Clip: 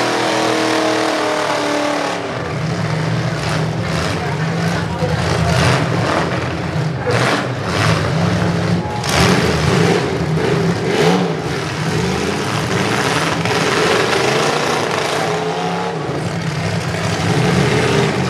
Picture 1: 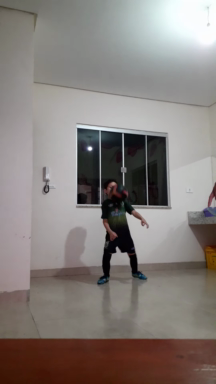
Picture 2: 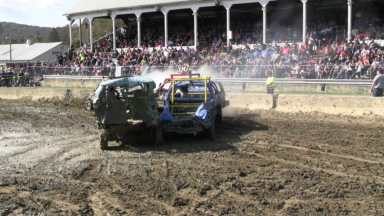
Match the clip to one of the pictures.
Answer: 2